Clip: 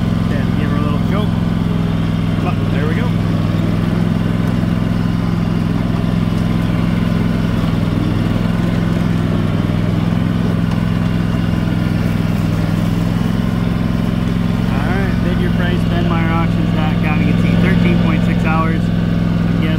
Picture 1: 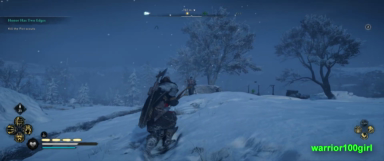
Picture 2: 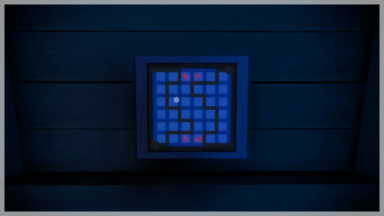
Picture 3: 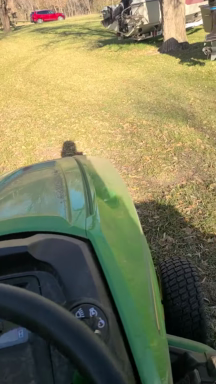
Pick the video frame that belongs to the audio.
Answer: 3